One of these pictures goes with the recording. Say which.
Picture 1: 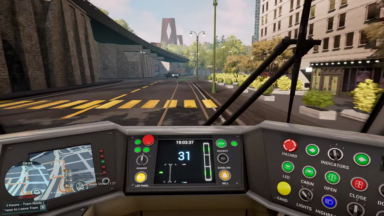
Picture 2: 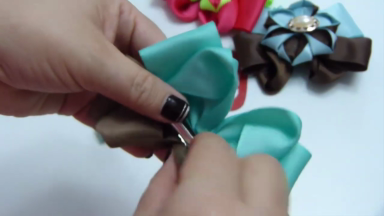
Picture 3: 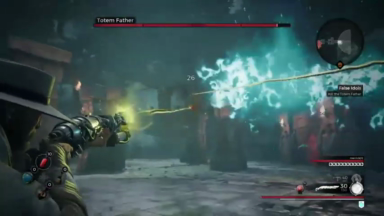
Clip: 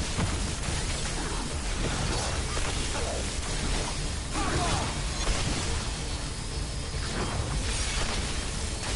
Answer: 3